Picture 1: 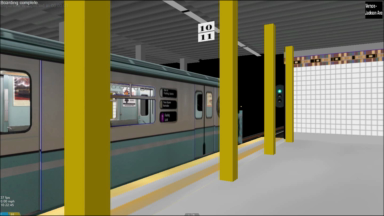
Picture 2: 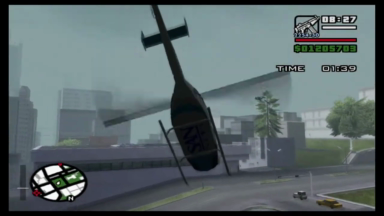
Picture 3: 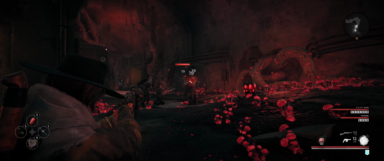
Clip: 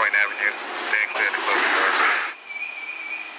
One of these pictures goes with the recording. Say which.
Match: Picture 1